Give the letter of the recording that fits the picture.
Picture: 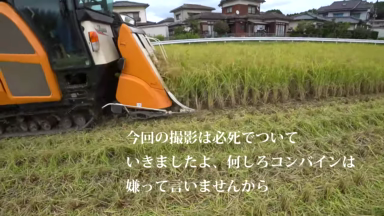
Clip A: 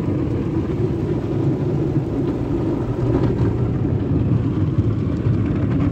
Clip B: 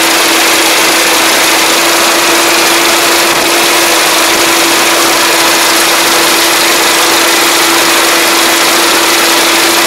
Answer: B